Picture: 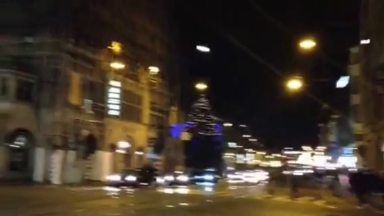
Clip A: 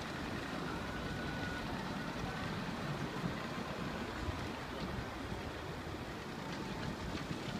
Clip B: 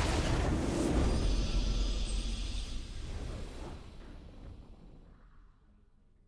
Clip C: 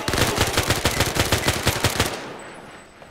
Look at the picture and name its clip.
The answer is A